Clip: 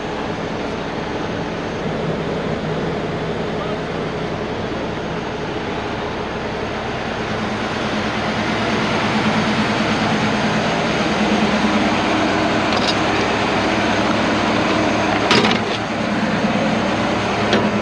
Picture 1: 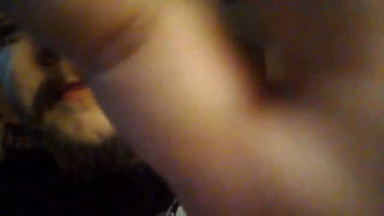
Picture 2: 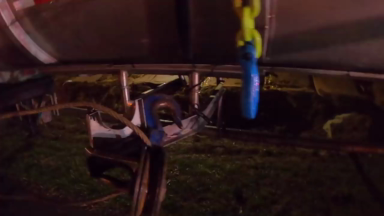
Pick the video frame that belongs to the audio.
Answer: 2